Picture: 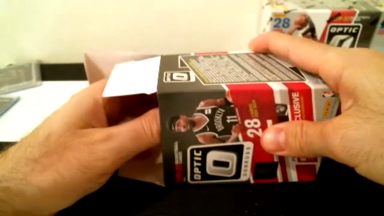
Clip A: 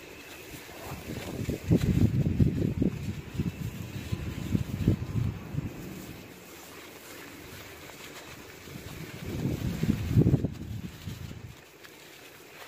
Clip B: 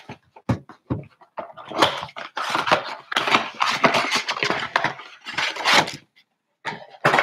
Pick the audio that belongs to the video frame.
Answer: B